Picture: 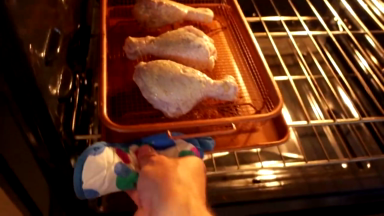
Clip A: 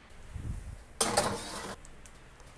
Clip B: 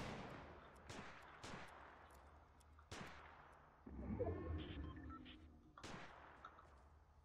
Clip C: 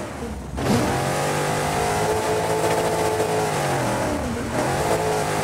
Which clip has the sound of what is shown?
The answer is A